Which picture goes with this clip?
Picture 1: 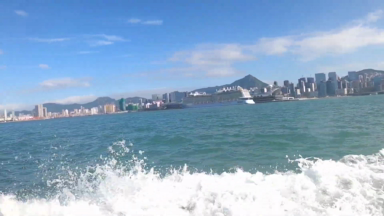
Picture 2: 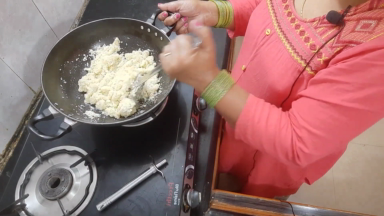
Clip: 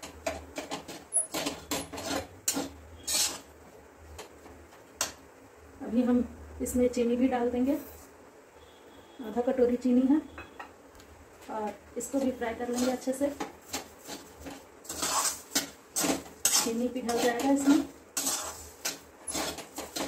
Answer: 2